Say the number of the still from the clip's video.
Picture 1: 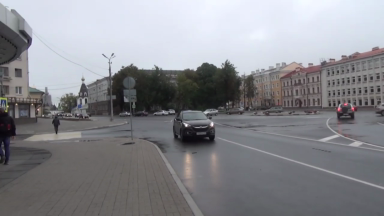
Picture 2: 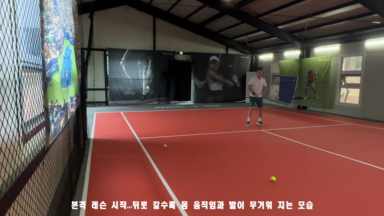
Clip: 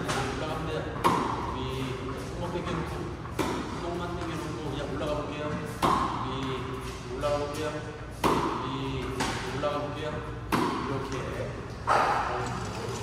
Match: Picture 2